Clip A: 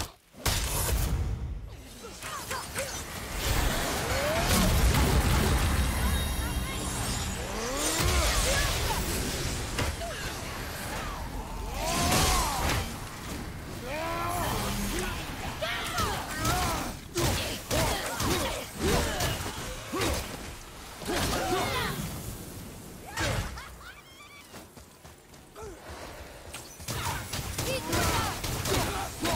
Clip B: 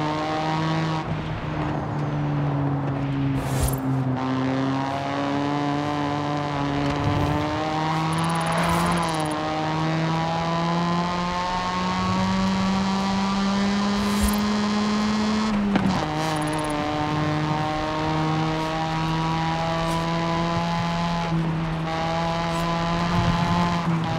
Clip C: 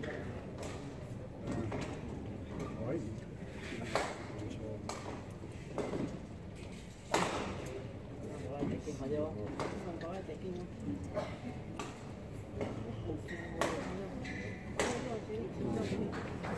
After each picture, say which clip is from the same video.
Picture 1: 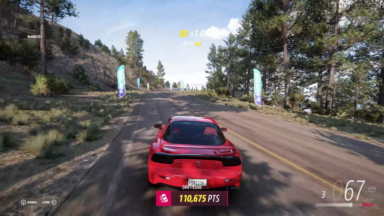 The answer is B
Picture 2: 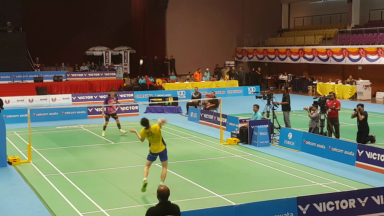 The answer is C